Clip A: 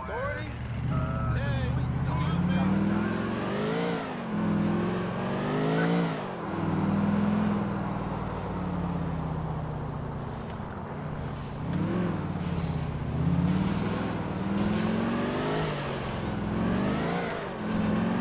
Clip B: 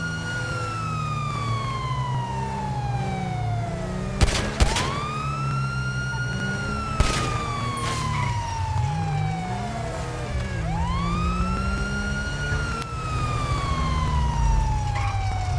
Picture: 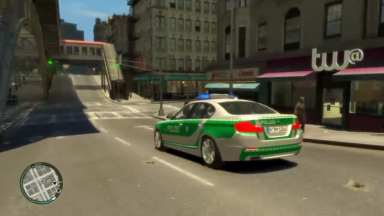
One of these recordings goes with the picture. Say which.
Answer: A